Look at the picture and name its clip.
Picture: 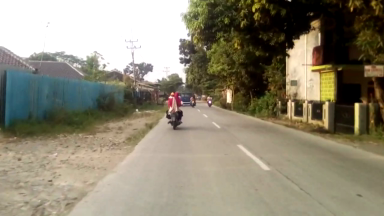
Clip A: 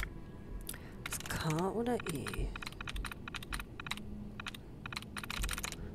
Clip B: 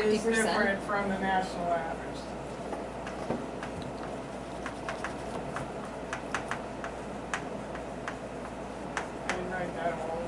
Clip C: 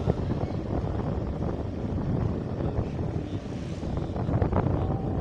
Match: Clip C